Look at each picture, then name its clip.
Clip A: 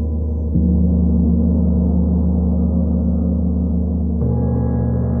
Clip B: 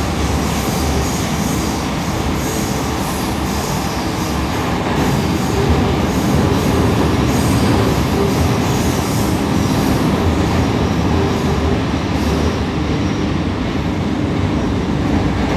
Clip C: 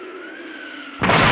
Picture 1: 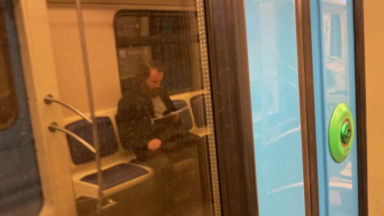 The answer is B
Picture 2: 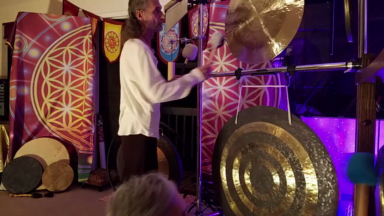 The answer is A